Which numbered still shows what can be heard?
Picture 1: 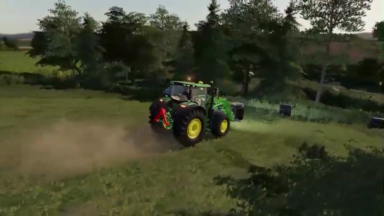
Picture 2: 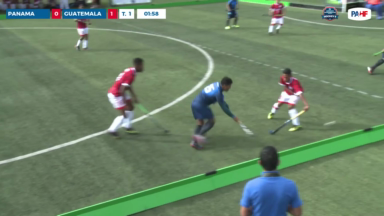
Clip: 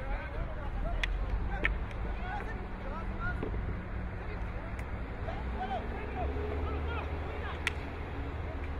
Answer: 2